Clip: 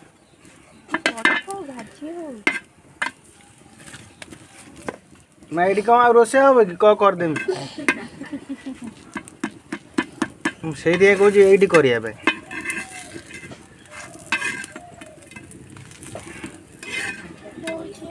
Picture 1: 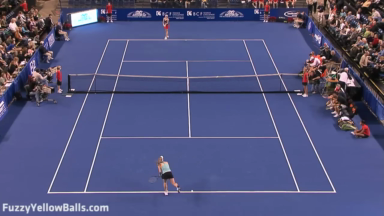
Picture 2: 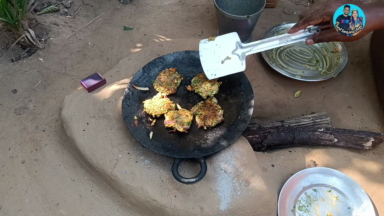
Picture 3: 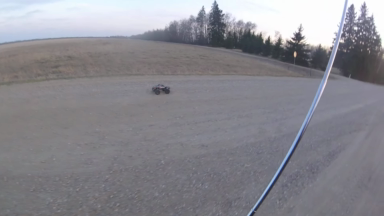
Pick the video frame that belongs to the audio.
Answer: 2